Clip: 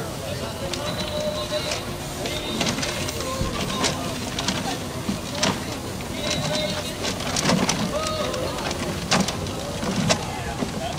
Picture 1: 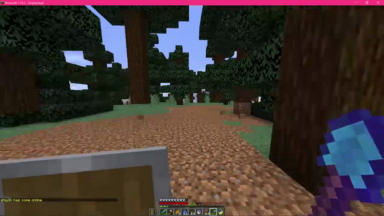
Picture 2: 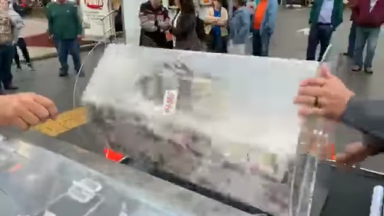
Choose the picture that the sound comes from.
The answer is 2